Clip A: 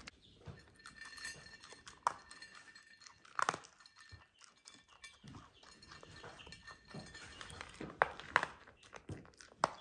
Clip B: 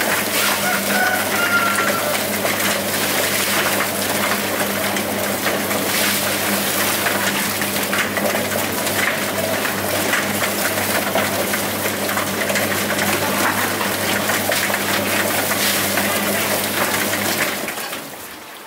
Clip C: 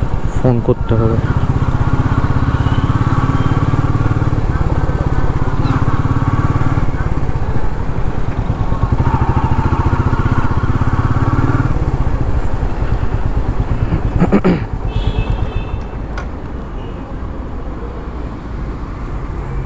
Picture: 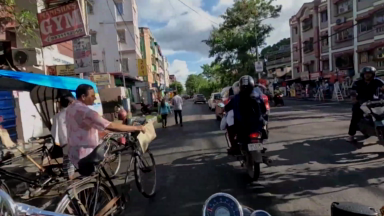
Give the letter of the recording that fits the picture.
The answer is C